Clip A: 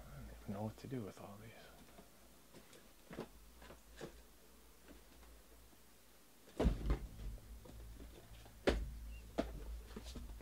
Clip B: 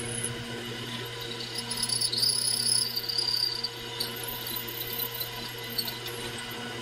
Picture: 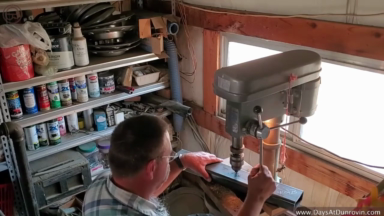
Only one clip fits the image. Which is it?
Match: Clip B